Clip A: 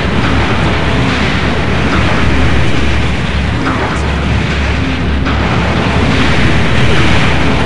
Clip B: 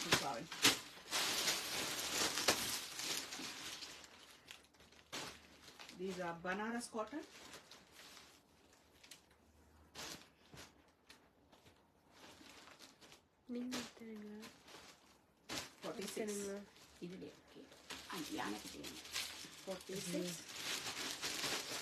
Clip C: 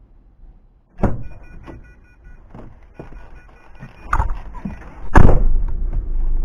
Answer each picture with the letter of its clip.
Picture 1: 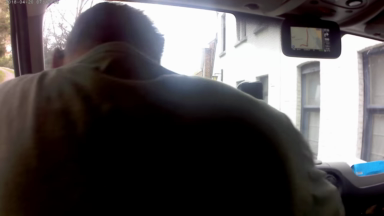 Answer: C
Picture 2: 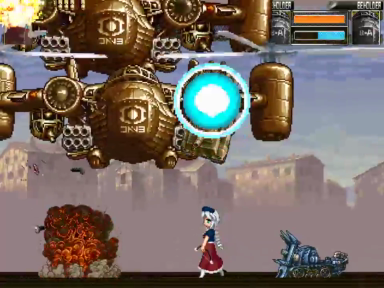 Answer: A